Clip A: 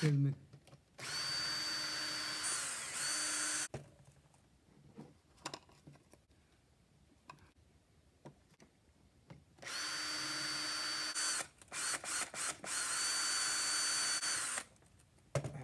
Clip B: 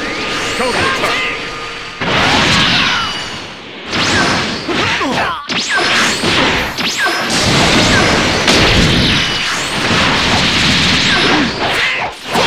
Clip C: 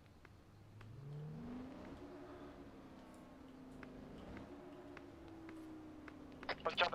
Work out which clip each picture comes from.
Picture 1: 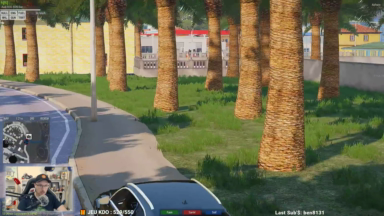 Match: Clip C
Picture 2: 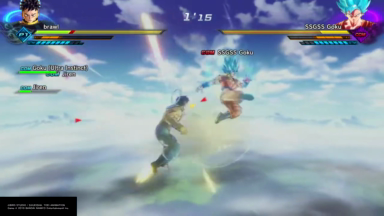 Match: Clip B